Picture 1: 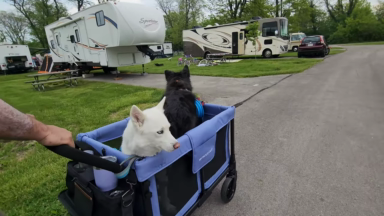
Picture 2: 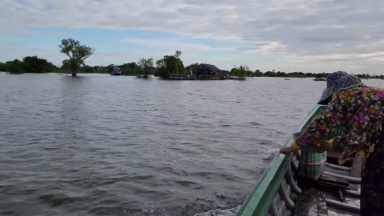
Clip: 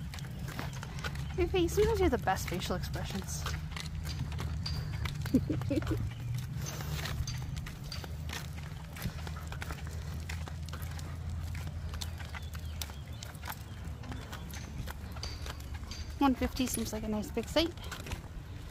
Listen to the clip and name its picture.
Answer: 1